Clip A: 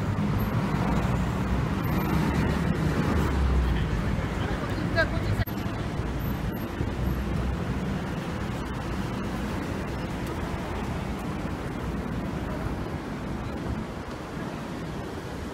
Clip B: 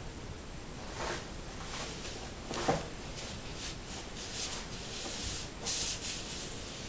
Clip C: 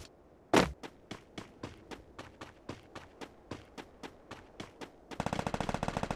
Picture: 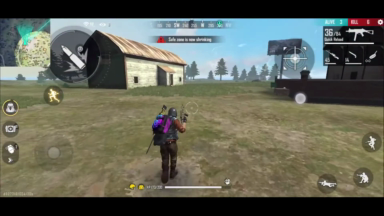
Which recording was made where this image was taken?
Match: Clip C